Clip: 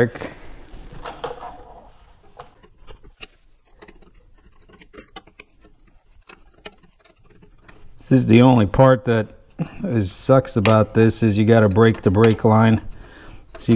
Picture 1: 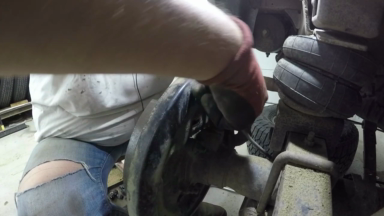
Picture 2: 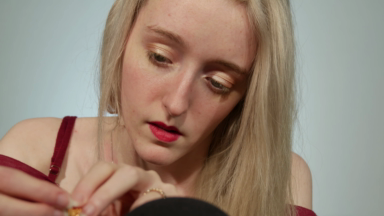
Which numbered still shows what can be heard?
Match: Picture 1